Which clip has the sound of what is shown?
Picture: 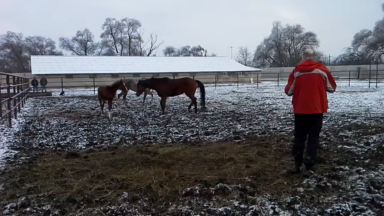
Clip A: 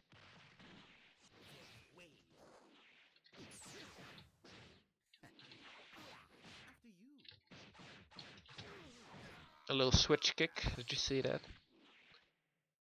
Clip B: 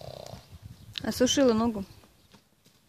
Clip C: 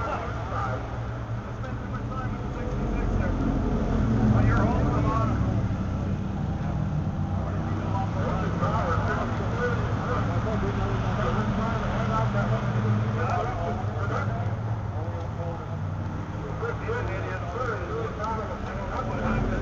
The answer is B